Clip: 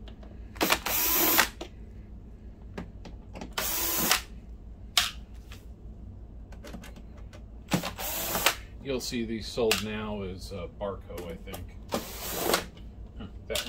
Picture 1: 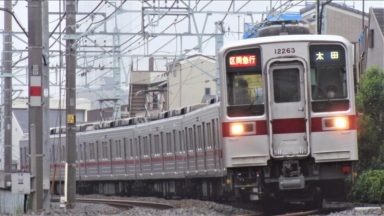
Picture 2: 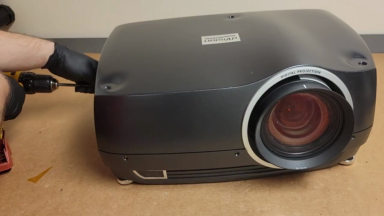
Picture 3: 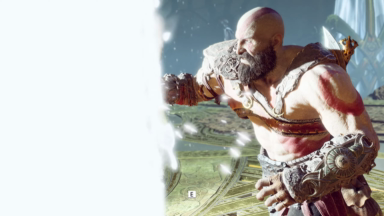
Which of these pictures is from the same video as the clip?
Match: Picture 2